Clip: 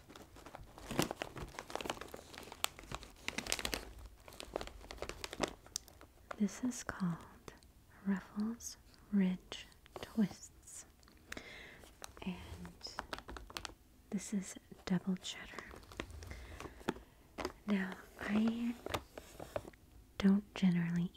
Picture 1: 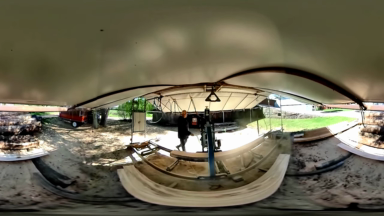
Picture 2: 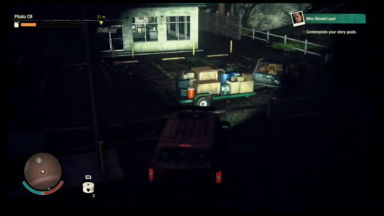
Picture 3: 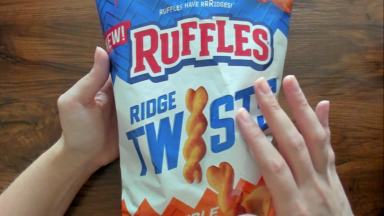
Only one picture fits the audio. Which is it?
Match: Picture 3